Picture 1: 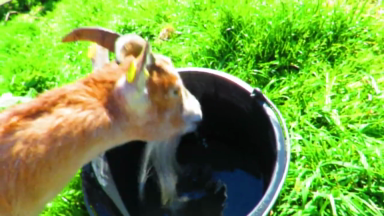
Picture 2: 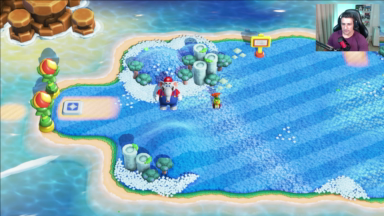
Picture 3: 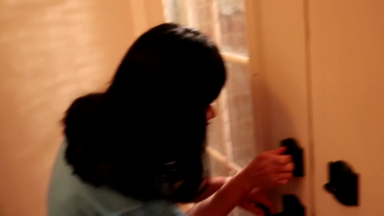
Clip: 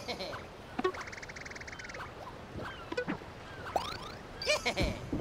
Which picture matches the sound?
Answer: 2